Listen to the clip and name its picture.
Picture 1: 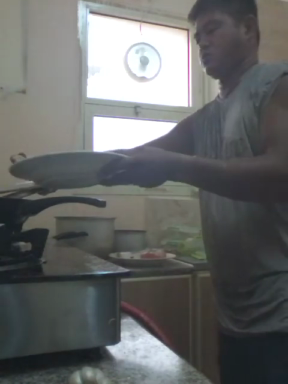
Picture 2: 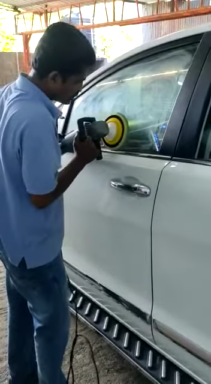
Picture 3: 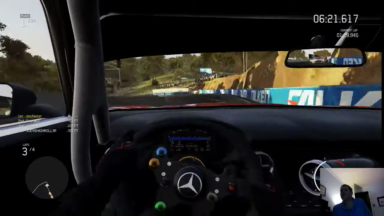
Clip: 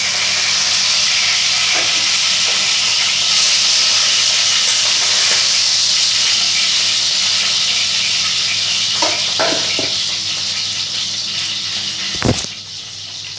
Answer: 1